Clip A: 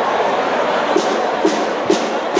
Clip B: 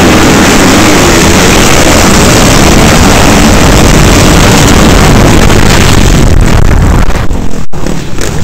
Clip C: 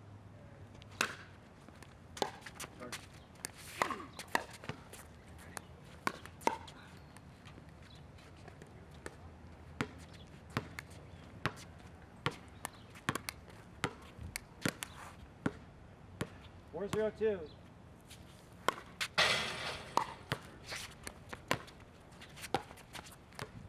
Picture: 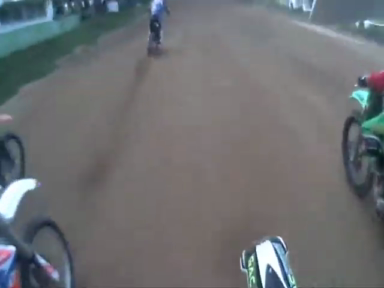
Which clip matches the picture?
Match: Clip B